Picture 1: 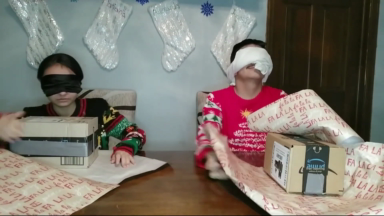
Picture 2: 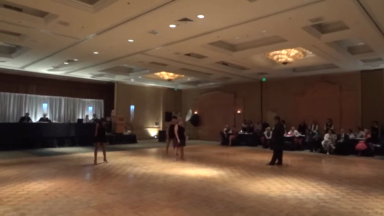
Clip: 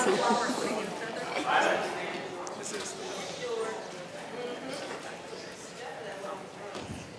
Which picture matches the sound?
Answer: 2